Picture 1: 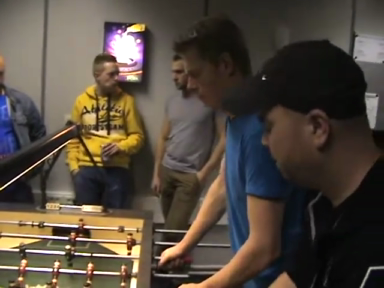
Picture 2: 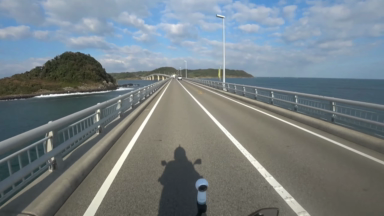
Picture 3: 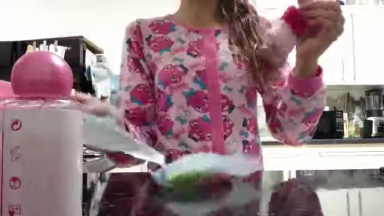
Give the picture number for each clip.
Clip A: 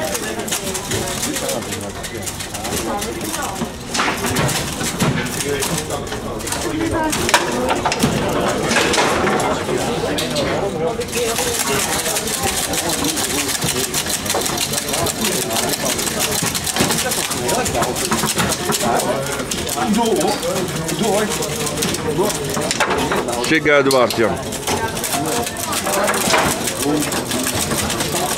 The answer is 1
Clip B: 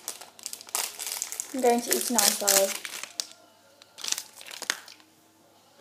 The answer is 3